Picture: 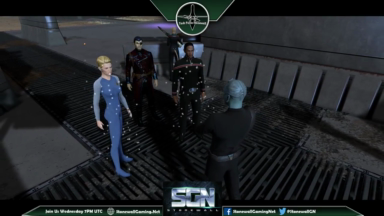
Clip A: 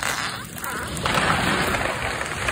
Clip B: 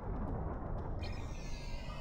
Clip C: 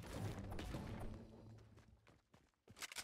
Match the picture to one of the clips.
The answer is B